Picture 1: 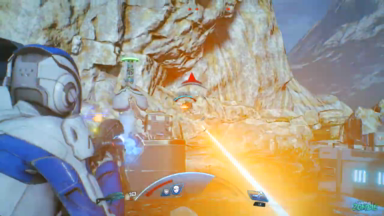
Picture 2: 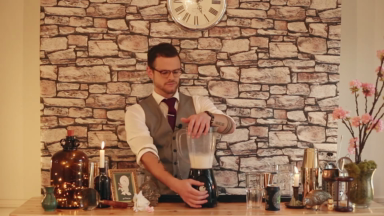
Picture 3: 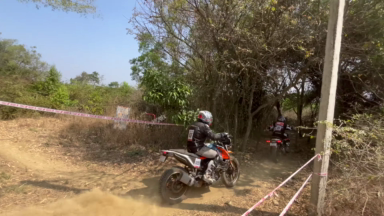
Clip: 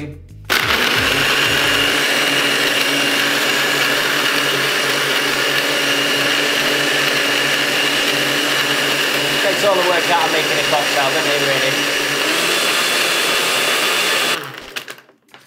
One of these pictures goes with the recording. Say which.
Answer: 2